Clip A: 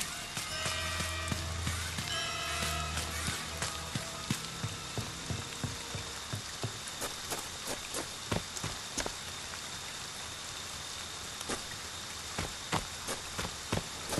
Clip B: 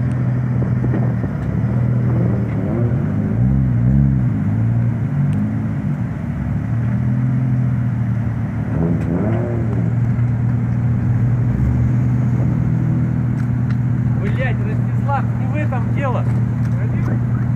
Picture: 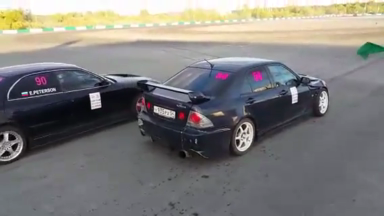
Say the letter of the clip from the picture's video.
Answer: B